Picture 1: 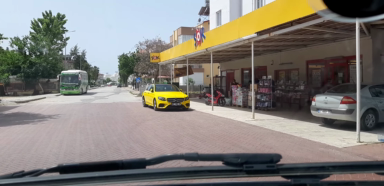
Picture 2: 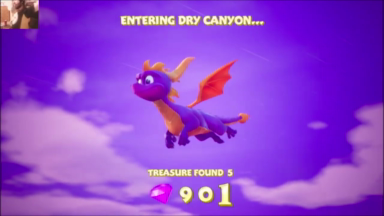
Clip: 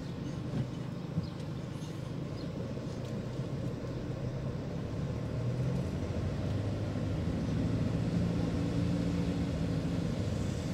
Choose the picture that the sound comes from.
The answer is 1